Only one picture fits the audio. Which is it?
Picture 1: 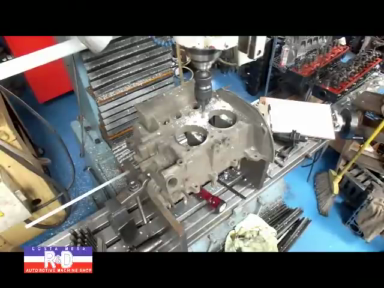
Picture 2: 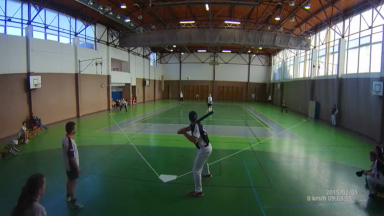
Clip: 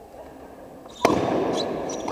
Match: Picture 2